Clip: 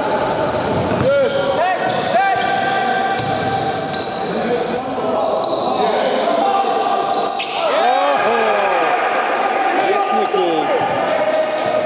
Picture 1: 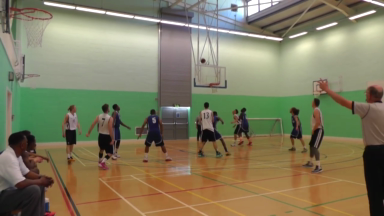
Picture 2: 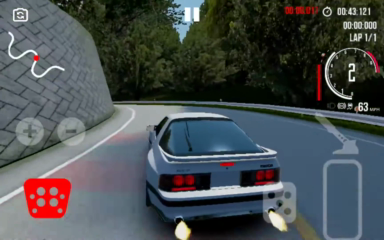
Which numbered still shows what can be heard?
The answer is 1